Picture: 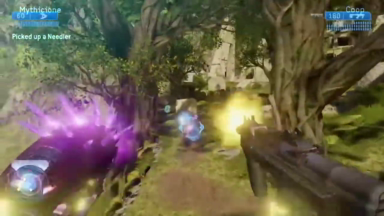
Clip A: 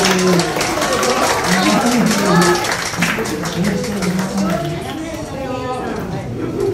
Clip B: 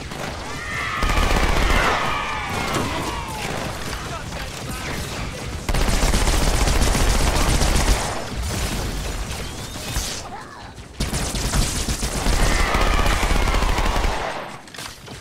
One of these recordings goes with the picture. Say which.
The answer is B